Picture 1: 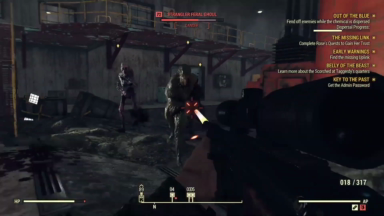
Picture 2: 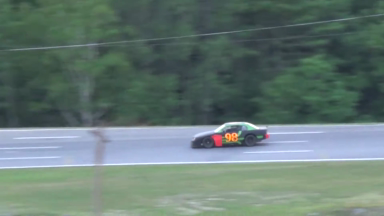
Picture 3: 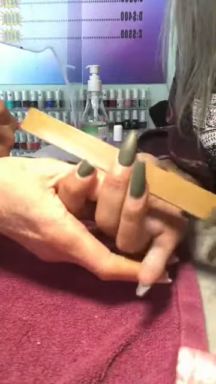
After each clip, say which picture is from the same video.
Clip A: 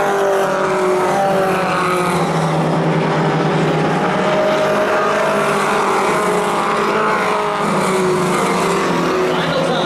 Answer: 2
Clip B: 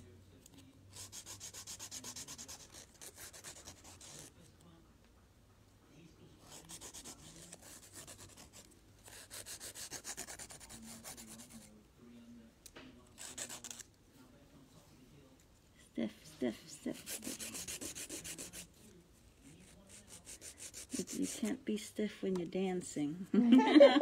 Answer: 3